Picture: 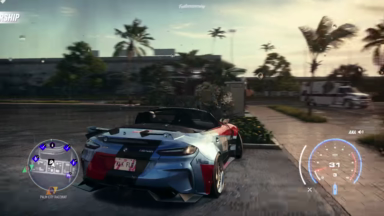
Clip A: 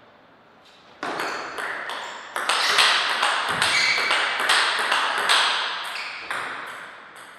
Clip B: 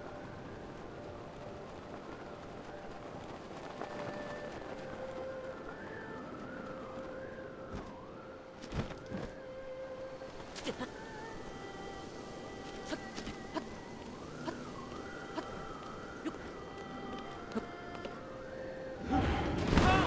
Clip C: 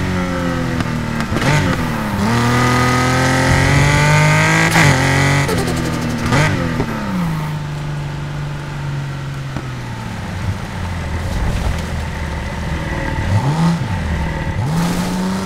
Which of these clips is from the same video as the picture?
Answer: C